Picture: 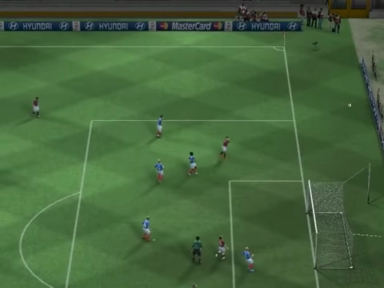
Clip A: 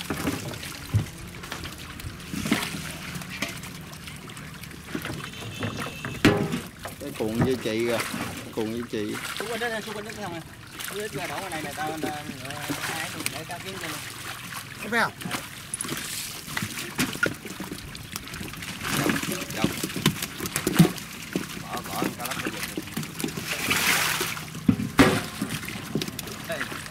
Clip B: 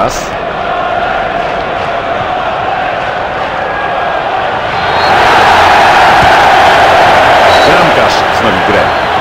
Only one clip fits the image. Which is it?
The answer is B